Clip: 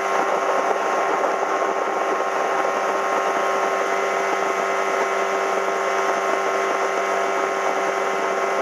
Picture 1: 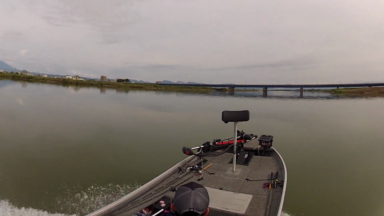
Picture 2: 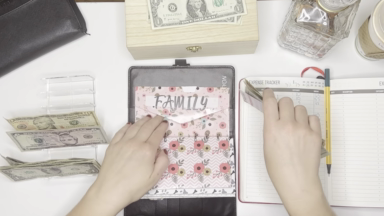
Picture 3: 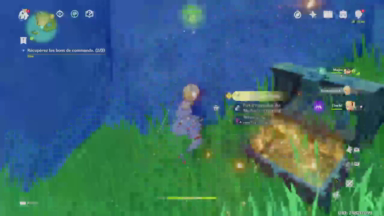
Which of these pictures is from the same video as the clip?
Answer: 1